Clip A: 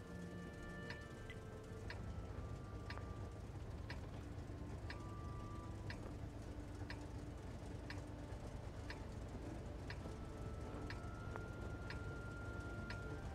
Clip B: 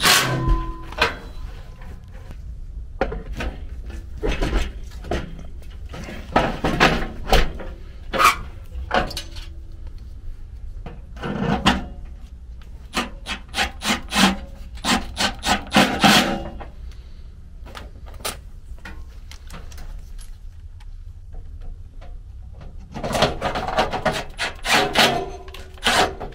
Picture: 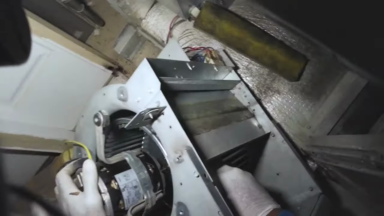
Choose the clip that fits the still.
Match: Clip B